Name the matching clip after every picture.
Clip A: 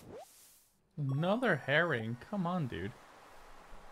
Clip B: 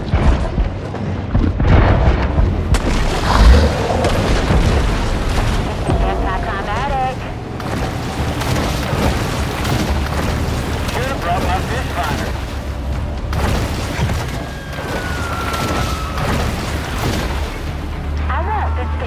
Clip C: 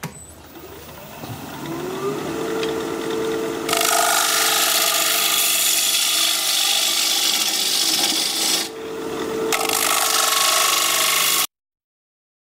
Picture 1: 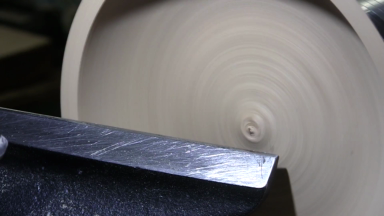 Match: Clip C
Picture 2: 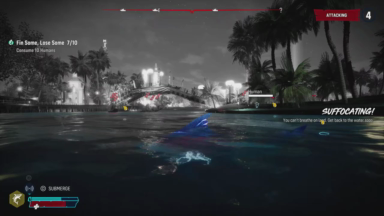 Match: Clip B